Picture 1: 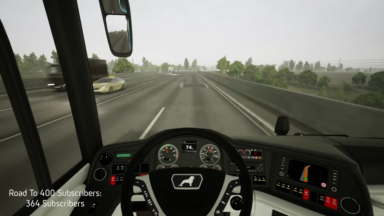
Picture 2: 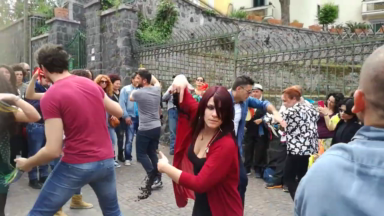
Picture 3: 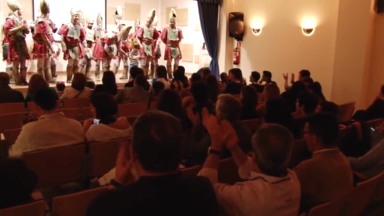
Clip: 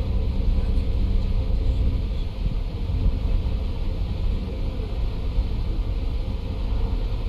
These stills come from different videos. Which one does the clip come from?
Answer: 1